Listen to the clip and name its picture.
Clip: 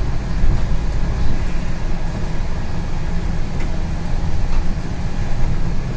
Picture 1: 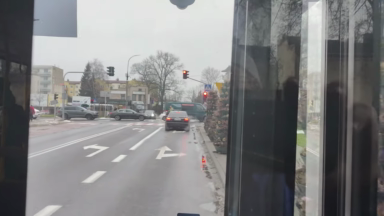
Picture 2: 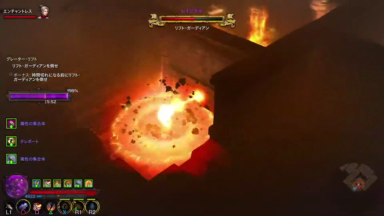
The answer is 1